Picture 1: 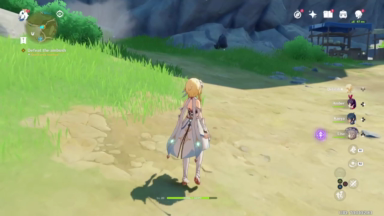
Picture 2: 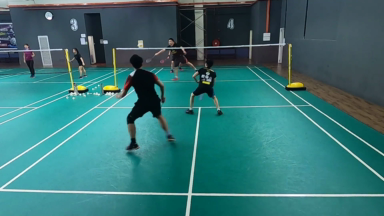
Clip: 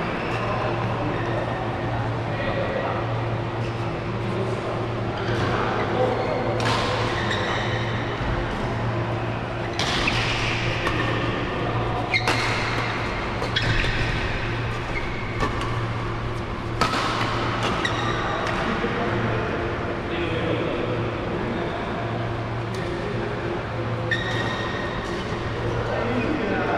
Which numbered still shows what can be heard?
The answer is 2